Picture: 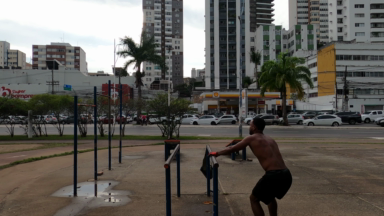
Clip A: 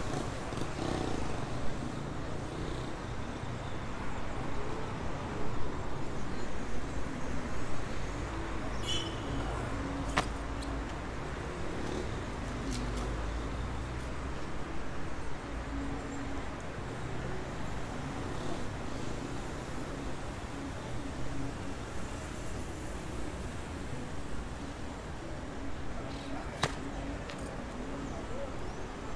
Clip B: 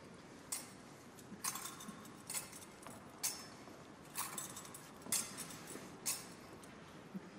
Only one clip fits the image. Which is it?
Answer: A